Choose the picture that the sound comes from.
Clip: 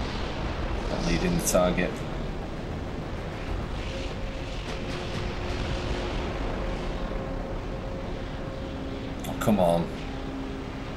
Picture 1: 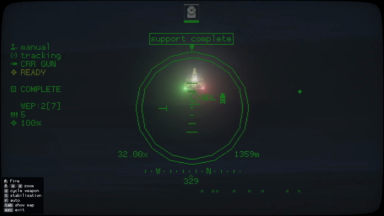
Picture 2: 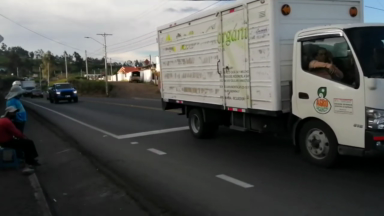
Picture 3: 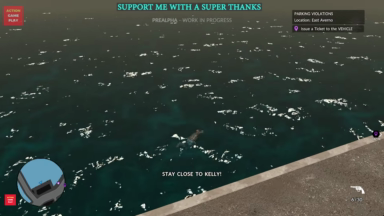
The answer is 1